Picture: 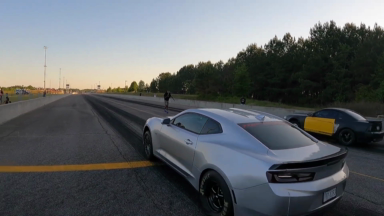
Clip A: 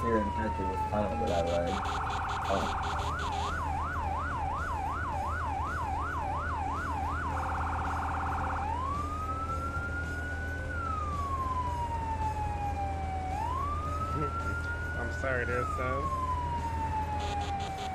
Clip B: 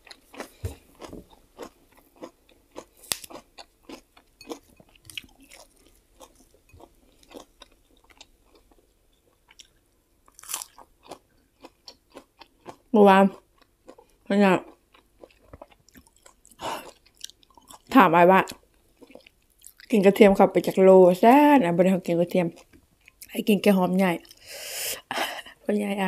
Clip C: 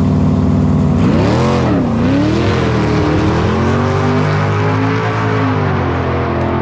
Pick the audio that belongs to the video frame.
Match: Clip C